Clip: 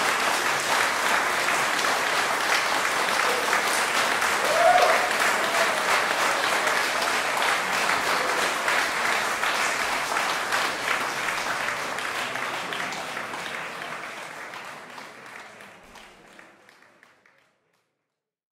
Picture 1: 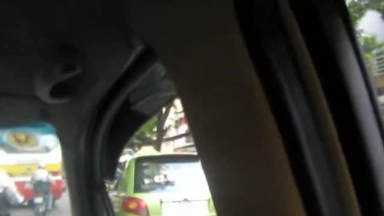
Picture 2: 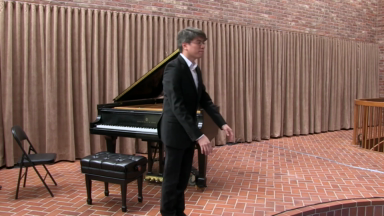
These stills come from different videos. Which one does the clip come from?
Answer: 2